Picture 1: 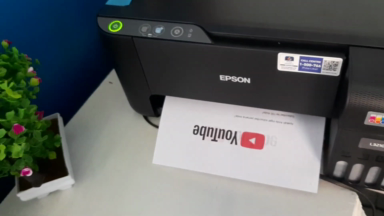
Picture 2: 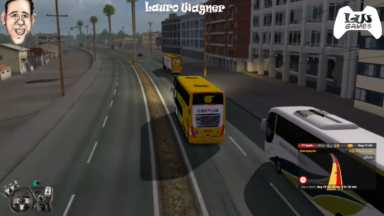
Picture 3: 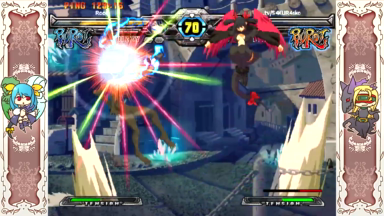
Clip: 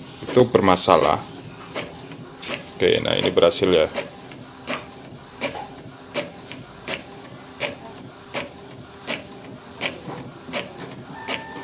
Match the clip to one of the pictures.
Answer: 1